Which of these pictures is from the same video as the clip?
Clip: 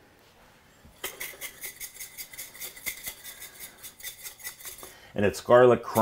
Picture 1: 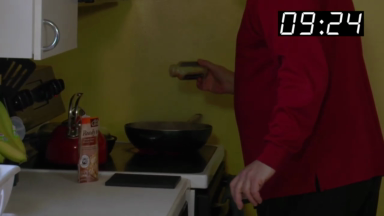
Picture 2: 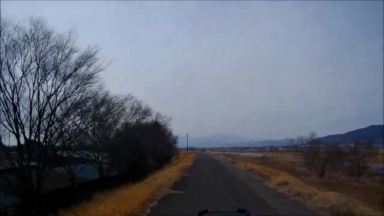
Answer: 1